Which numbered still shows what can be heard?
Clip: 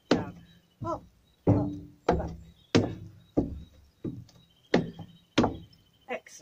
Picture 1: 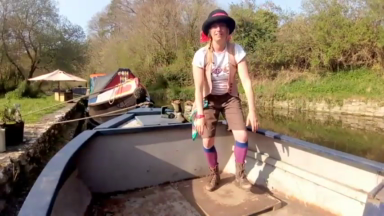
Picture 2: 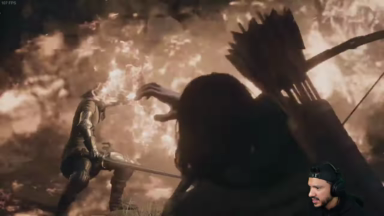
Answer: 1